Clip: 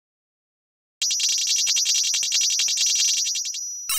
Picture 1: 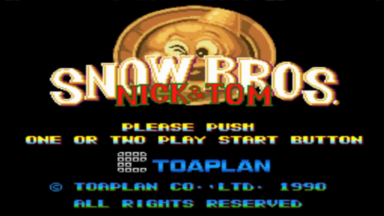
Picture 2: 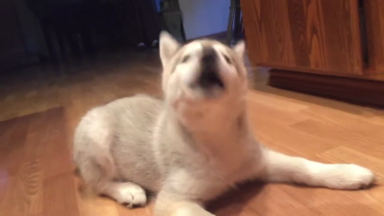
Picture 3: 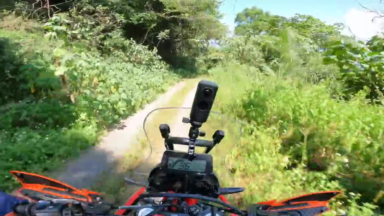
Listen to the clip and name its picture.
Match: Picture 1